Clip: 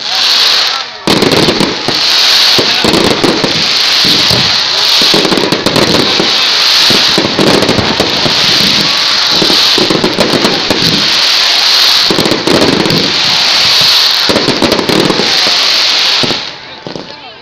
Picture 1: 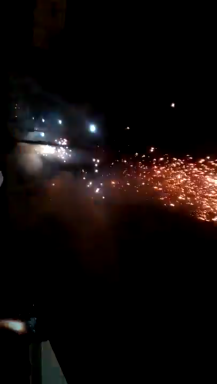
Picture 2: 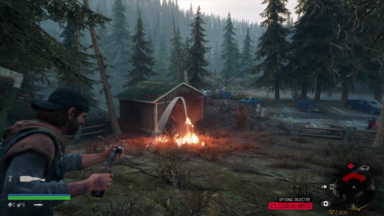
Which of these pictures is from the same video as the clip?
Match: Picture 1